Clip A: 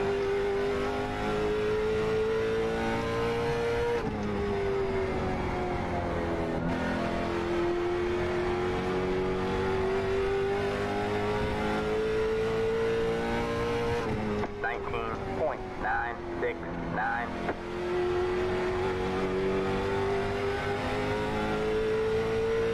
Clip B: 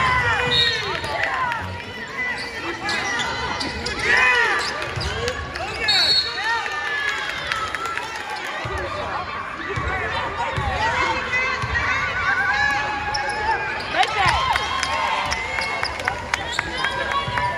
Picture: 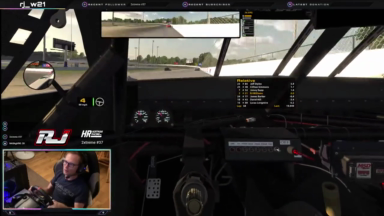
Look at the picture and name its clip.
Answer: A